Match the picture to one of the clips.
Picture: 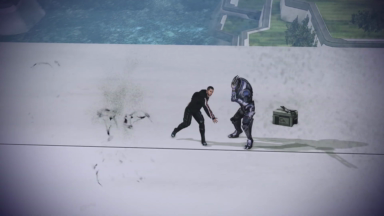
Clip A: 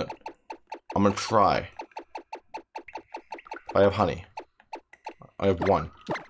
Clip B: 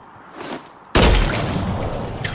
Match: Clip B